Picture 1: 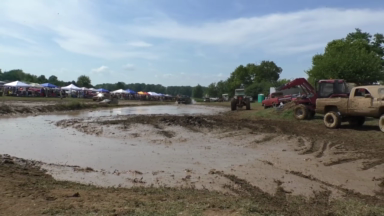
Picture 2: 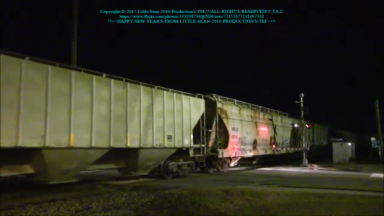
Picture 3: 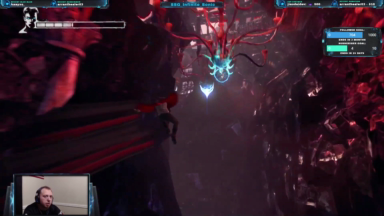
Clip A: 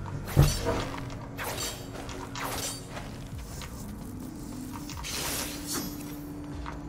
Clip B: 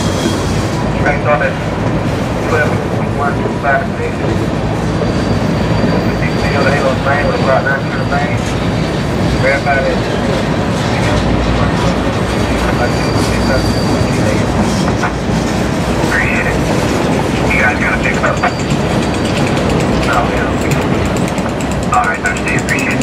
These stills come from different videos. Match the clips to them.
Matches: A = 3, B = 2